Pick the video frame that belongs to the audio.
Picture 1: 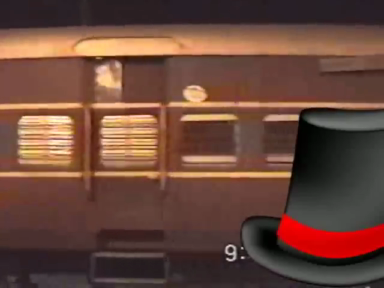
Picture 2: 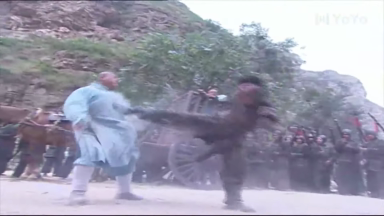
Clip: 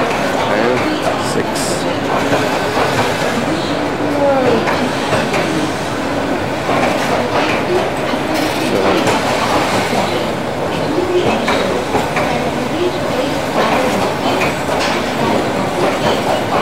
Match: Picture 1